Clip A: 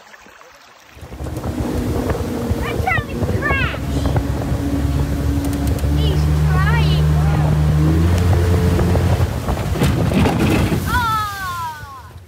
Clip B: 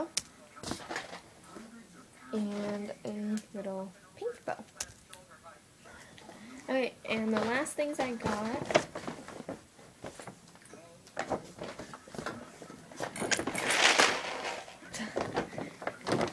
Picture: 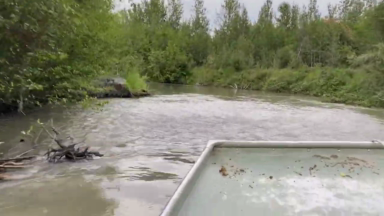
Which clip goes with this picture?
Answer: A